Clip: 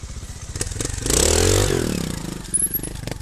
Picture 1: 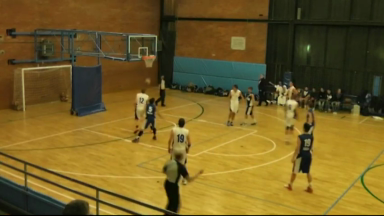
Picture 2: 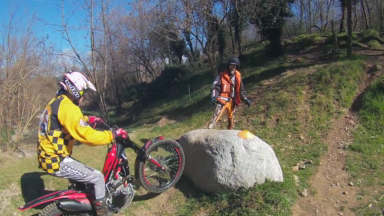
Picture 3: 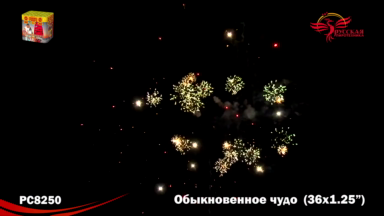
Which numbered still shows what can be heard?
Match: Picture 2